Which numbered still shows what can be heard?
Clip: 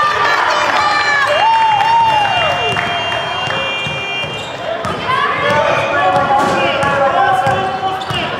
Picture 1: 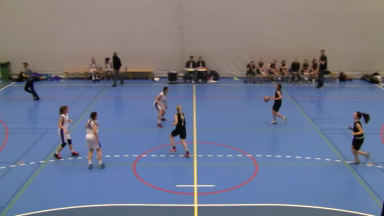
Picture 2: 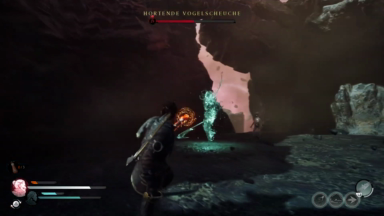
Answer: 1